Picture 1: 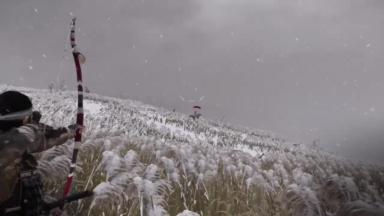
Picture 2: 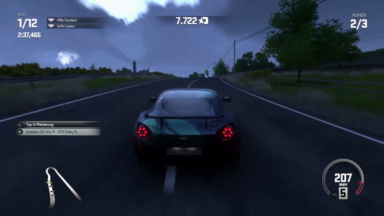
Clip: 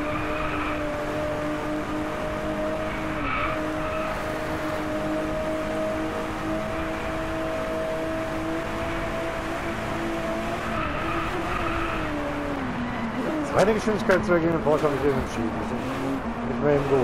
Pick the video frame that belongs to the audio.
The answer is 2